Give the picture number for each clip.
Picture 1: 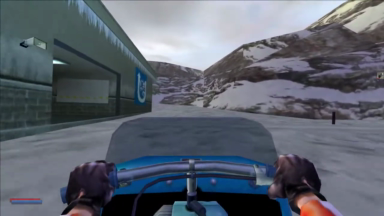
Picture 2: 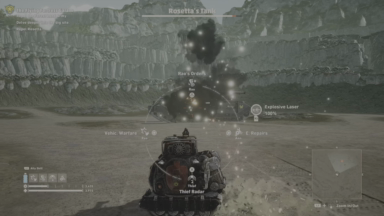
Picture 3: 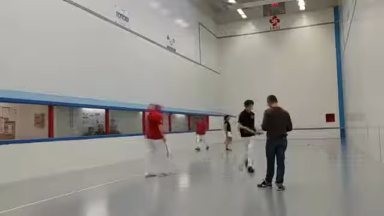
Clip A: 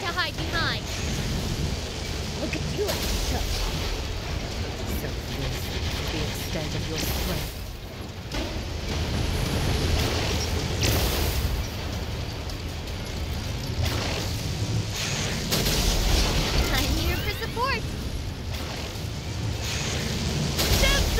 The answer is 2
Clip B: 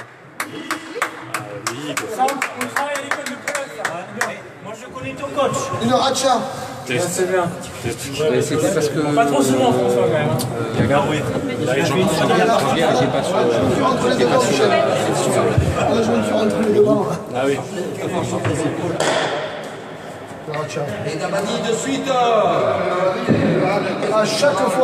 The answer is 3